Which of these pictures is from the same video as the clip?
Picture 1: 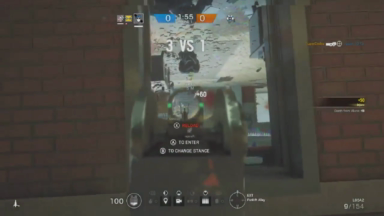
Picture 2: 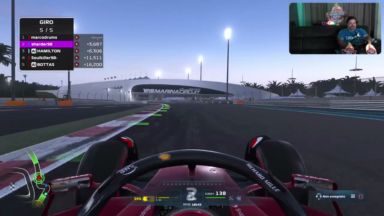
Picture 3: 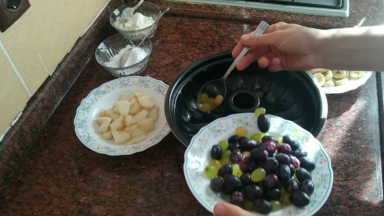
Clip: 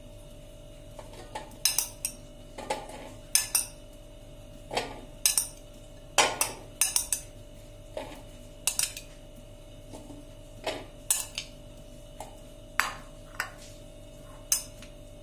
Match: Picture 3